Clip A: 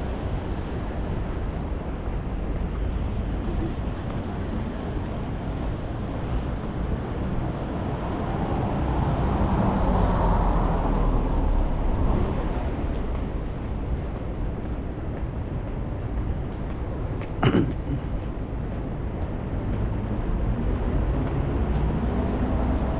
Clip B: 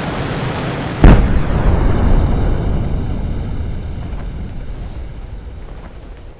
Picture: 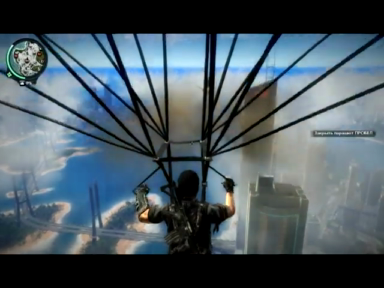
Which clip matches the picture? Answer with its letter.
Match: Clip B